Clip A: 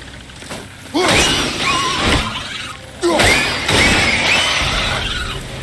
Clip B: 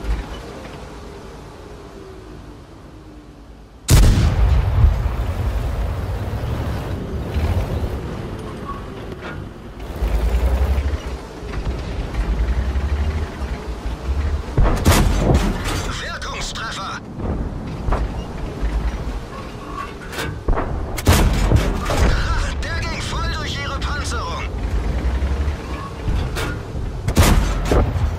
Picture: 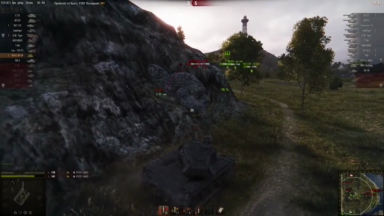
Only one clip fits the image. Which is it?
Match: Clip B